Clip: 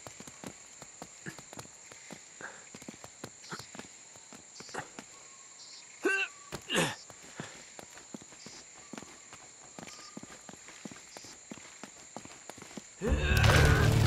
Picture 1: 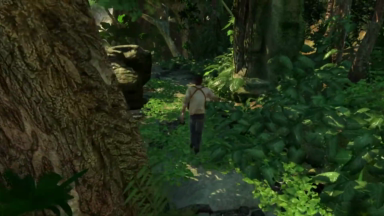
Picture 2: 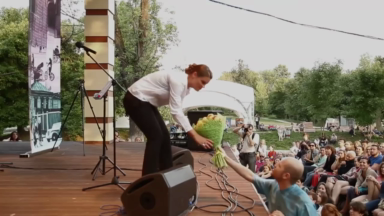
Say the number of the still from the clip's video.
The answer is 1